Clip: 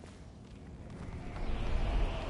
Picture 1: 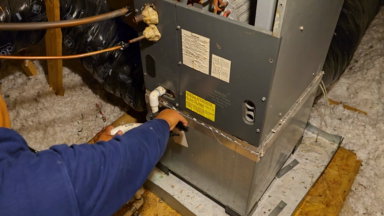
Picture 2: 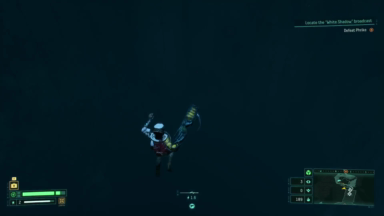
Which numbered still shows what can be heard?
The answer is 2